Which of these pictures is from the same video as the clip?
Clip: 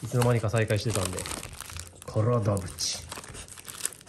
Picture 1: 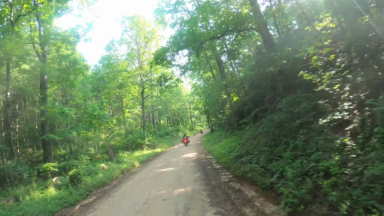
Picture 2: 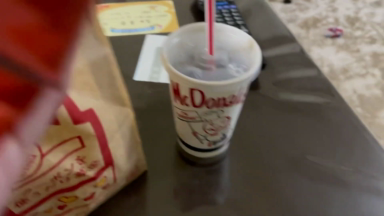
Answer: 2